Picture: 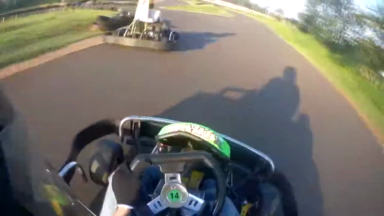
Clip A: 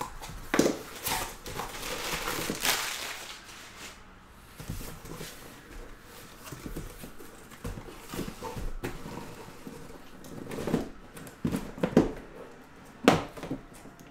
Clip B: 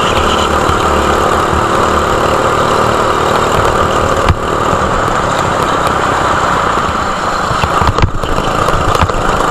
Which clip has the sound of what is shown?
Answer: B